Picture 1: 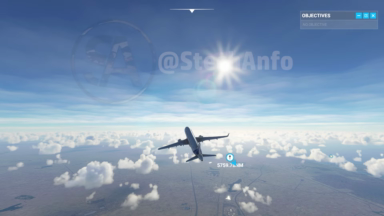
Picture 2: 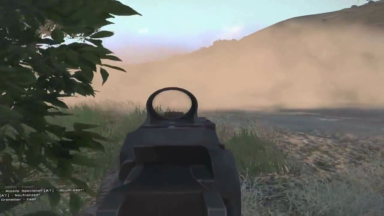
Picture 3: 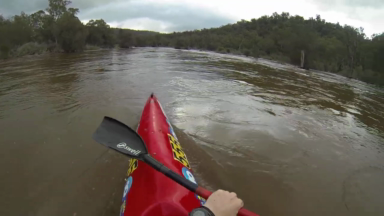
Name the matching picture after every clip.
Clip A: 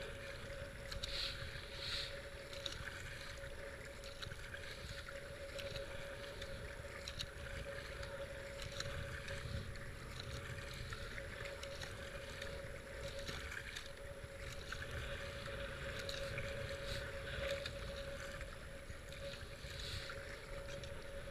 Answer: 3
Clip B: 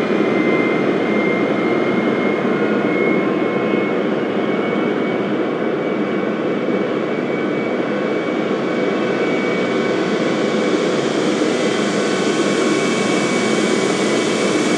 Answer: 1